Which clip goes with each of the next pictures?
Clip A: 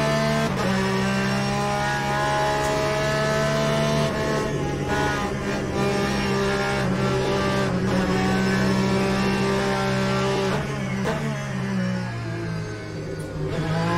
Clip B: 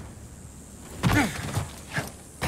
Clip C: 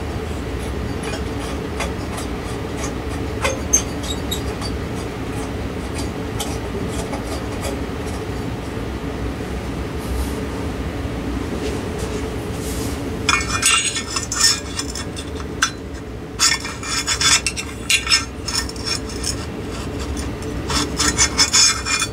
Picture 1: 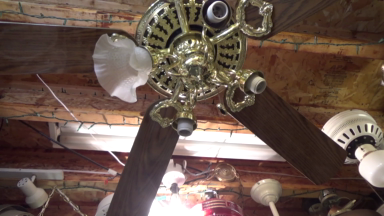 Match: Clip C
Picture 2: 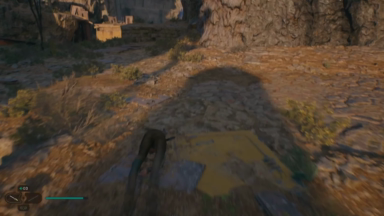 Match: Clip B